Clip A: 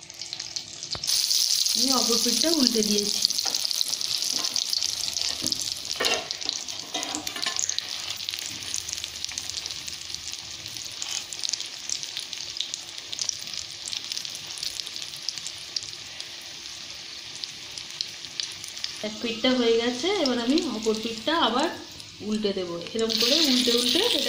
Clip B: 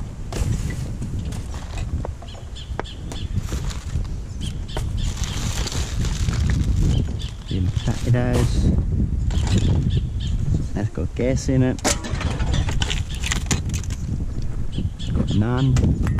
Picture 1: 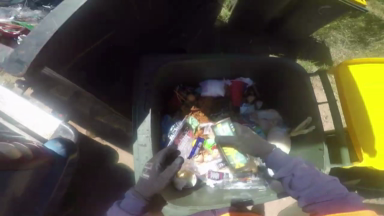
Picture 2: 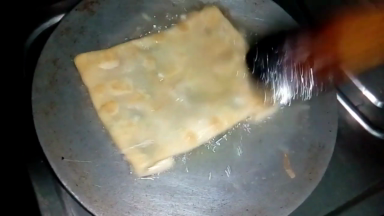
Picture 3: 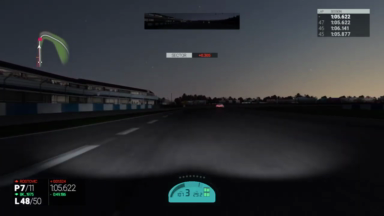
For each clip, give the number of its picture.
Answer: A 2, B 1